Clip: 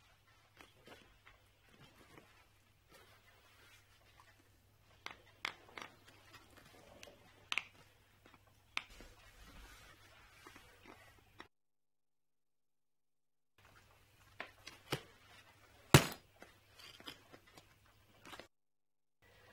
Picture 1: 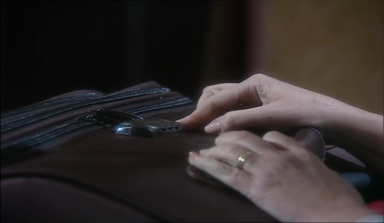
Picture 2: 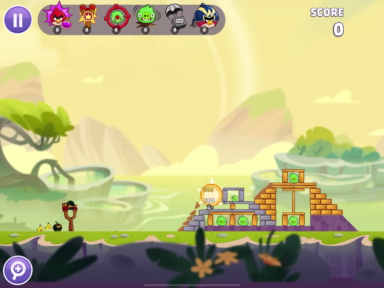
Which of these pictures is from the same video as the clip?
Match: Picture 1